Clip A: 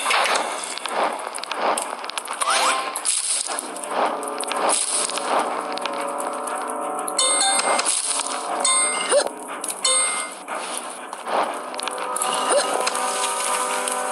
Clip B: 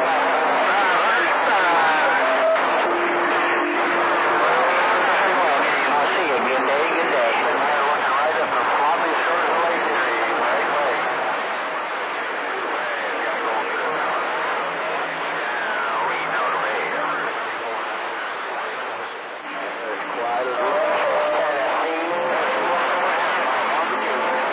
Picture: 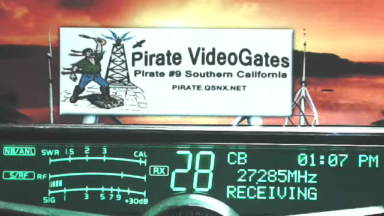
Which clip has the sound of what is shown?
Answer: B